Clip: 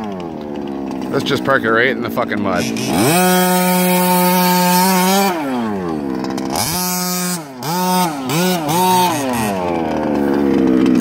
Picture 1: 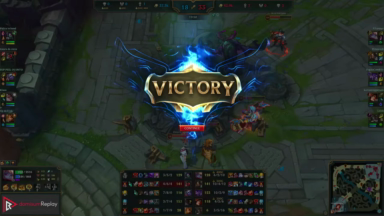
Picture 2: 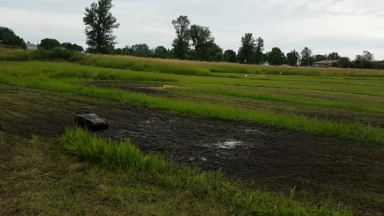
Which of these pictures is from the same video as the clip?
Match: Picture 2